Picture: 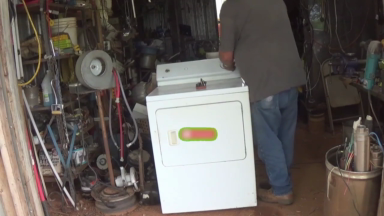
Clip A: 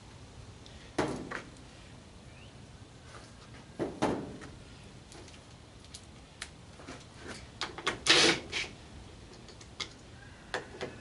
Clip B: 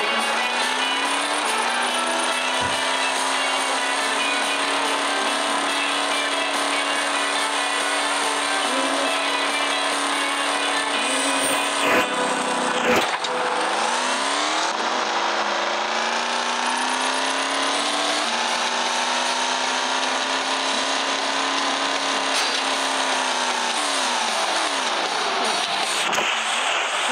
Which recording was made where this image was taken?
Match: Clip A